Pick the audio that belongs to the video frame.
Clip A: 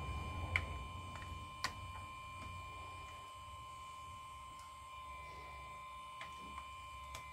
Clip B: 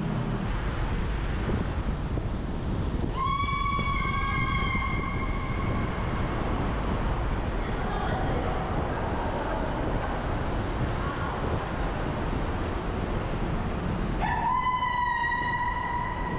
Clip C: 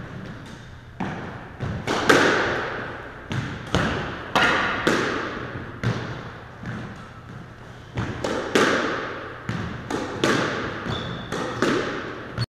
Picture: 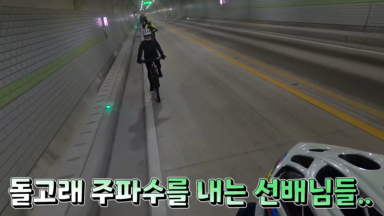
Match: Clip B